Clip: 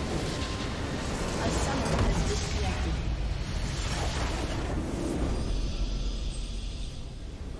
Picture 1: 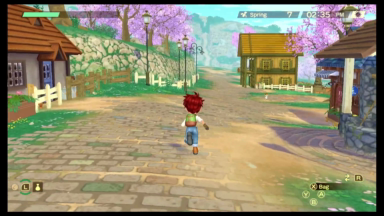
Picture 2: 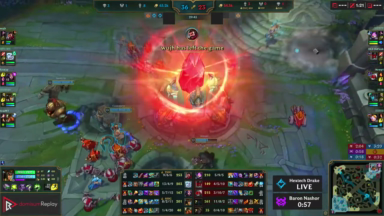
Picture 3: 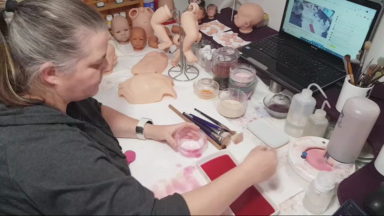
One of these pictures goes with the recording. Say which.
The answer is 2